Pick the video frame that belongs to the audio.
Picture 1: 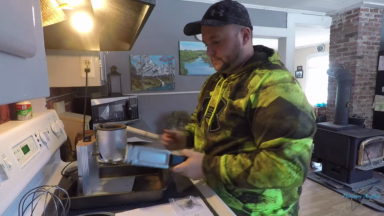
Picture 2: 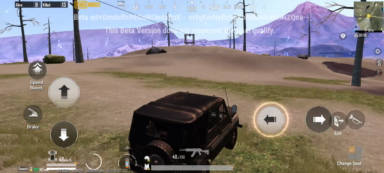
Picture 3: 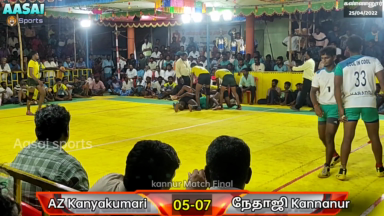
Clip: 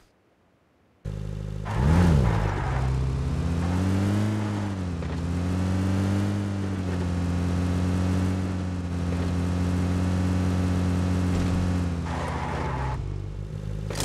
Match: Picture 2